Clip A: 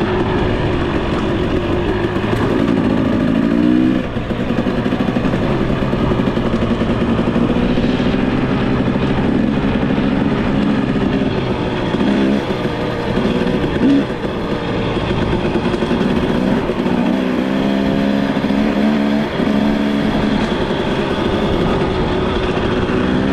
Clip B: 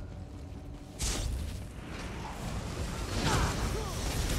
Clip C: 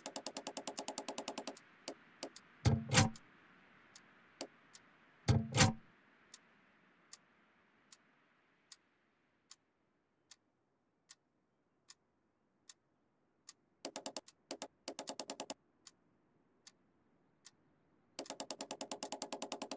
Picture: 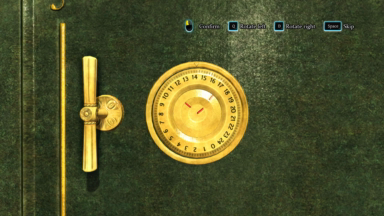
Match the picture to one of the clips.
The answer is C